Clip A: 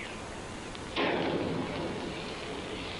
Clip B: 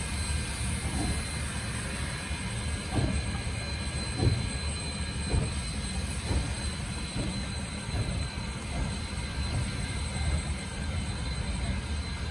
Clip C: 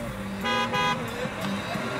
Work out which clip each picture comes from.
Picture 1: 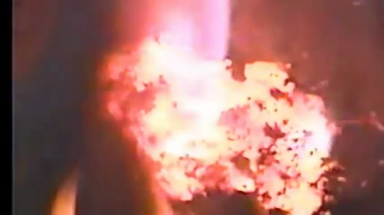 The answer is A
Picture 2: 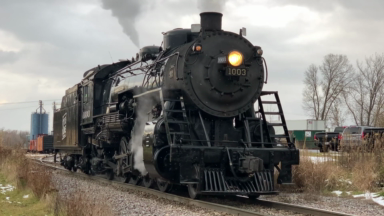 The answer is B